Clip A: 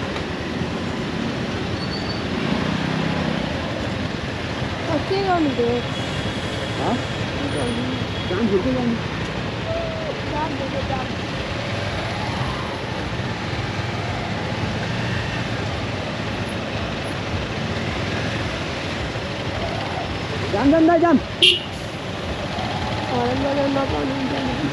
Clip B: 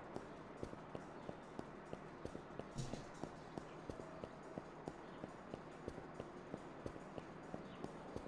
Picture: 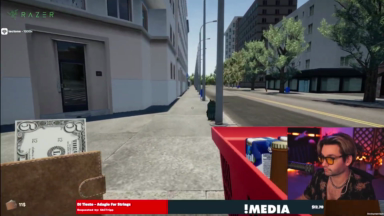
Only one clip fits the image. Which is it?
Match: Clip B